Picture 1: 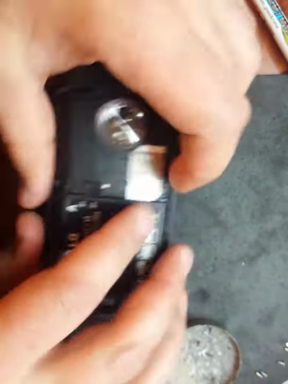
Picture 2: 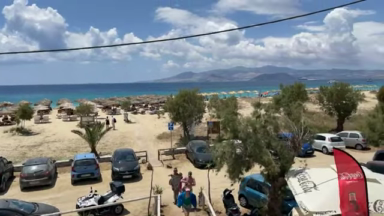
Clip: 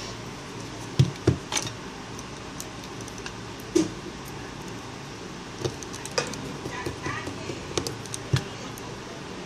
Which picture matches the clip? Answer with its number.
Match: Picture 1